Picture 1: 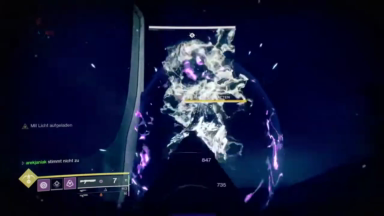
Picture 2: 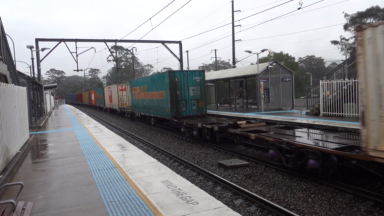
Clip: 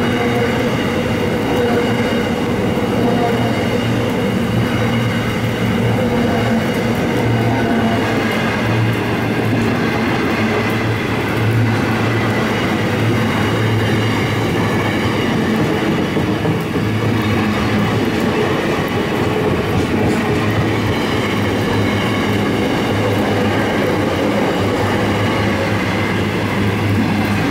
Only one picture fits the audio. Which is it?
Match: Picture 2